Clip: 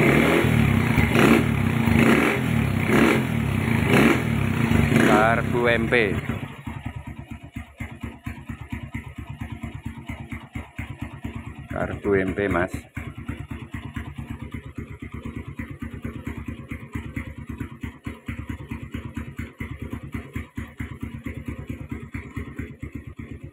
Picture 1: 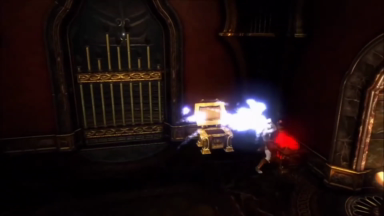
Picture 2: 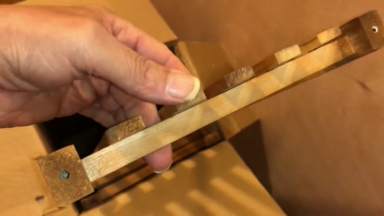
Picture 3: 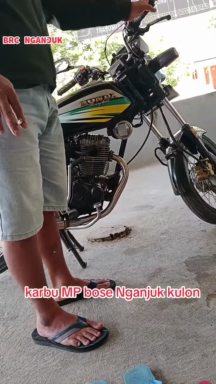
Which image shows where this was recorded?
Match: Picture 3